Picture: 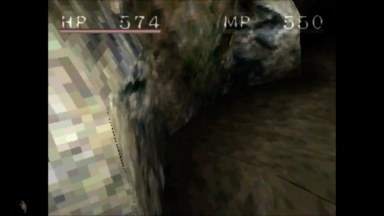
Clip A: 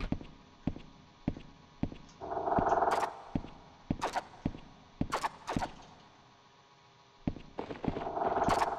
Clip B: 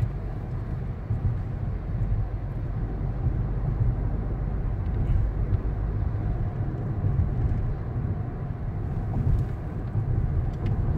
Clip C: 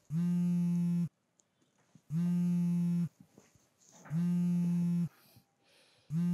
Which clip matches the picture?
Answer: A